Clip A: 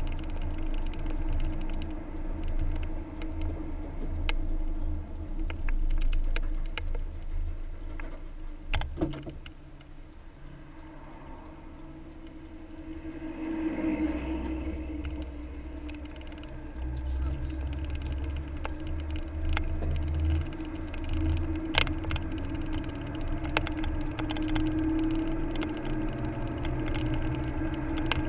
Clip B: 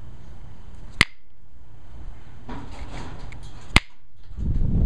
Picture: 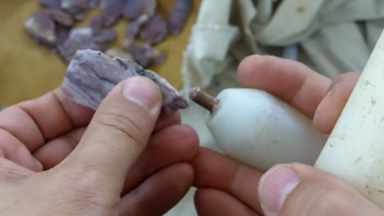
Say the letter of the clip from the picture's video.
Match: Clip B